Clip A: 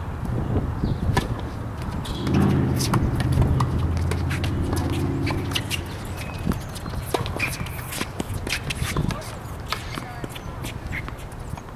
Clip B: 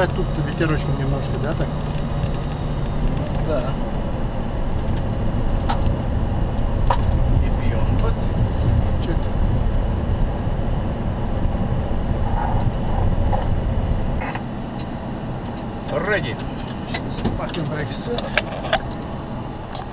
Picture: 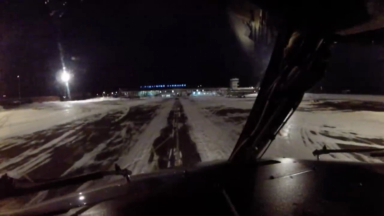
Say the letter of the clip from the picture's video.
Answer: B